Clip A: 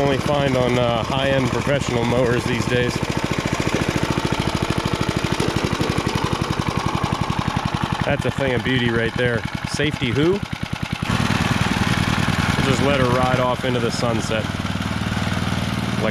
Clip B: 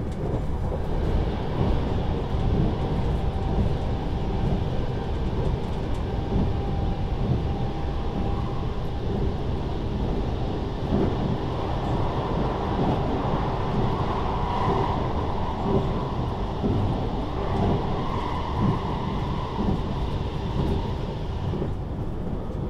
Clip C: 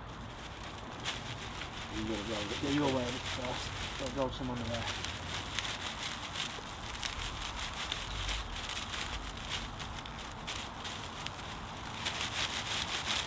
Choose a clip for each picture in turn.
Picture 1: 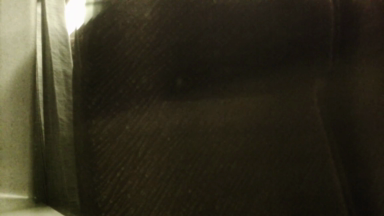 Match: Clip B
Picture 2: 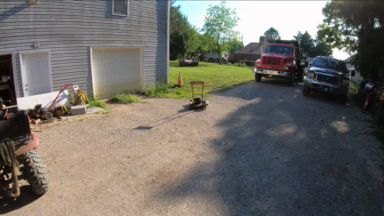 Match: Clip A